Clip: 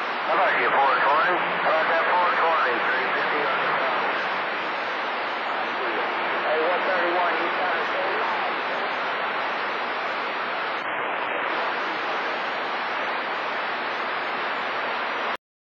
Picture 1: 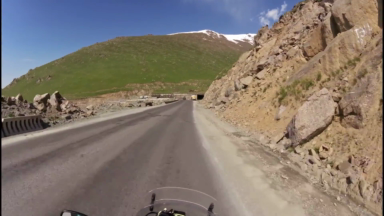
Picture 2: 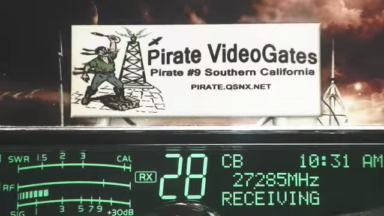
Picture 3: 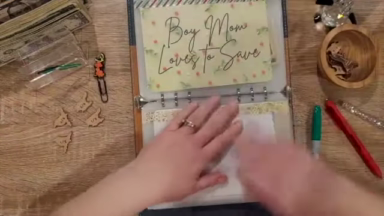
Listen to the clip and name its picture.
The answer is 2